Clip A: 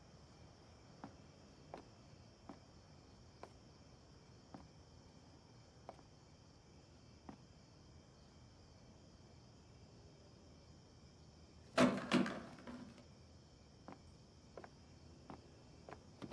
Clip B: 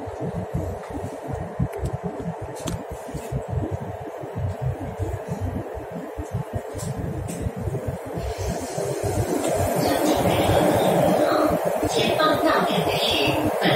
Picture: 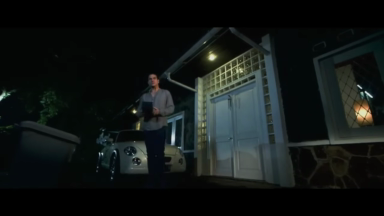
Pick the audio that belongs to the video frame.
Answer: A